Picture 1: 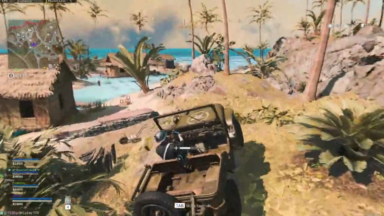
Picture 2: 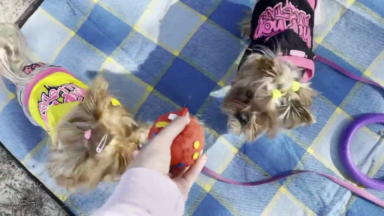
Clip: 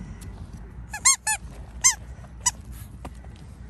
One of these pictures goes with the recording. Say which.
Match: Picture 2